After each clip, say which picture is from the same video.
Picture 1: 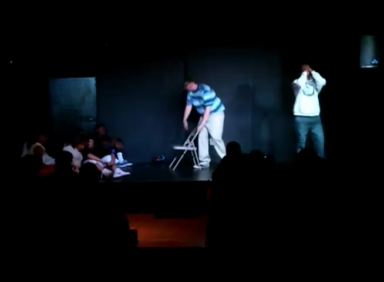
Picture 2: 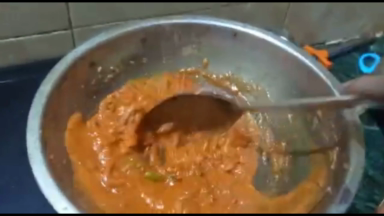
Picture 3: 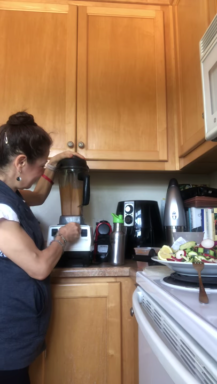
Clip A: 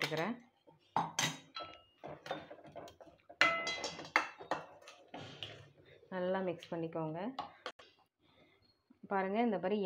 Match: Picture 2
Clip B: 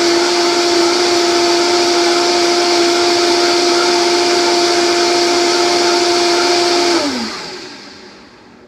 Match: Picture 3